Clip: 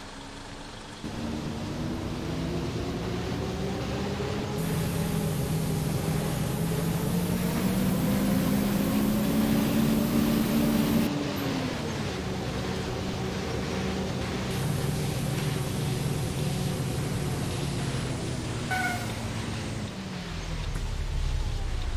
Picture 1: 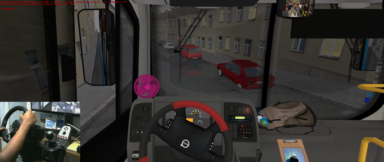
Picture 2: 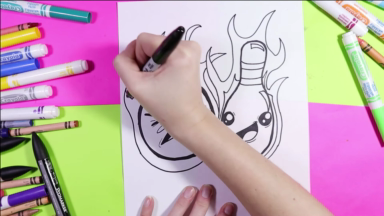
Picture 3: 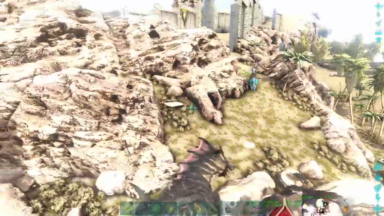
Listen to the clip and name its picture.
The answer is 1